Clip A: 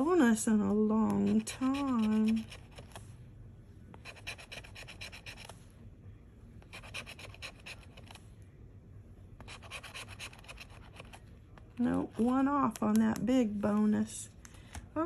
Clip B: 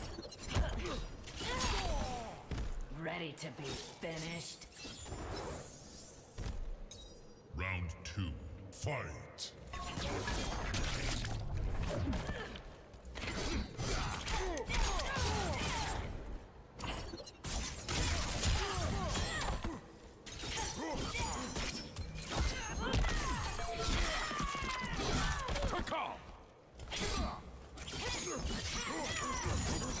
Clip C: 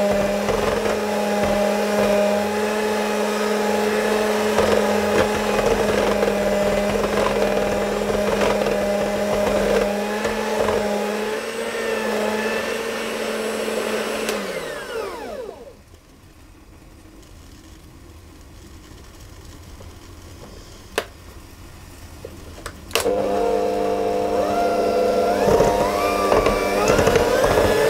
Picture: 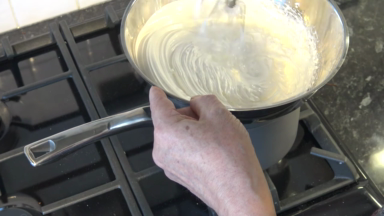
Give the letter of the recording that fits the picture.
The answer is C